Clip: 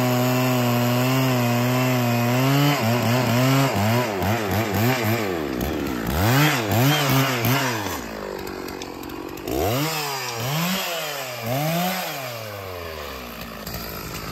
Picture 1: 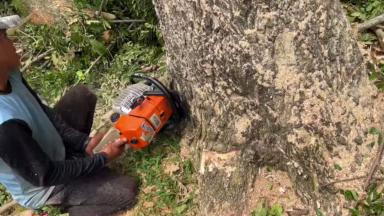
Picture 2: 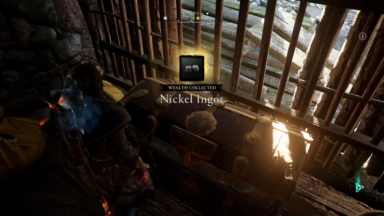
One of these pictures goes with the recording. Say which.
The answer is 1